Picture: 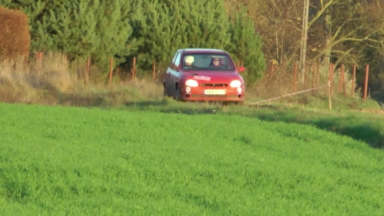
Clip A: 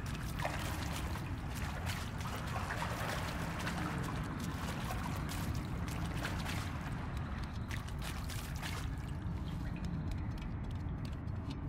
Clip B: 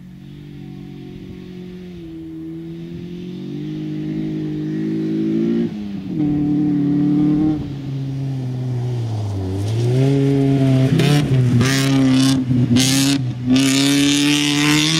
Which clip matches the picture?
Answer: B